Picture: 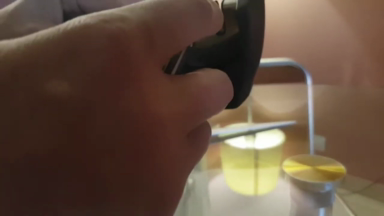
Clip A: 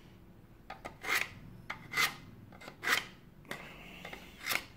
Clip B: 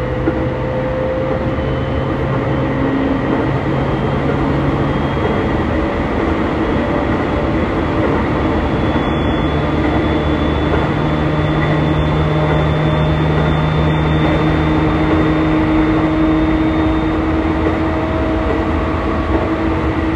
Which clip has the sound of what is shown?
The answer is A